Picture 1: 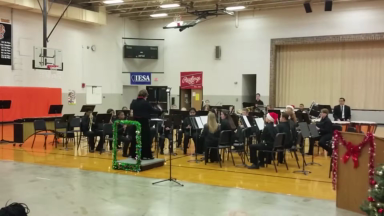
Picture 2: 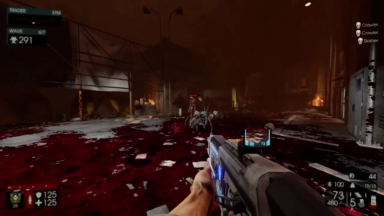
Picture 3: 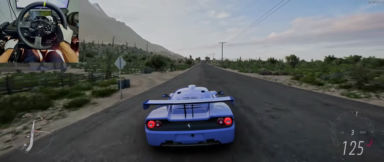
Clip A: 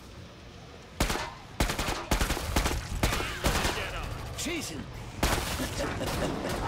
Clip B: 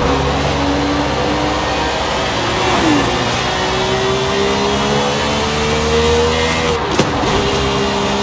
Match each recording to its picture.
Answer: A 2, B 3